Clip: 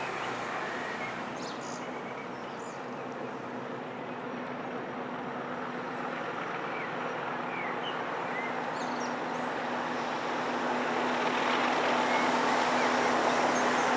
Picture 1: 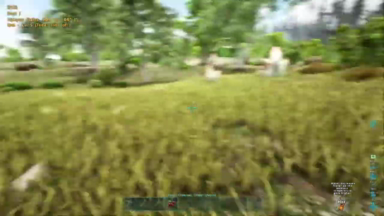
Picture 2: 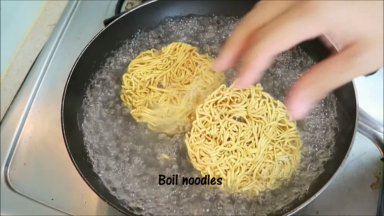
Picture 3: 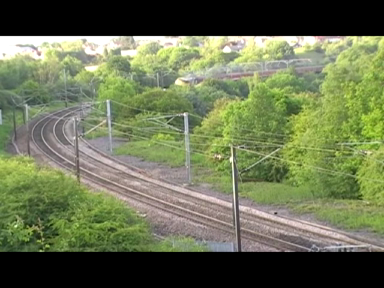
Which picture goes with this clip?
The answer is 3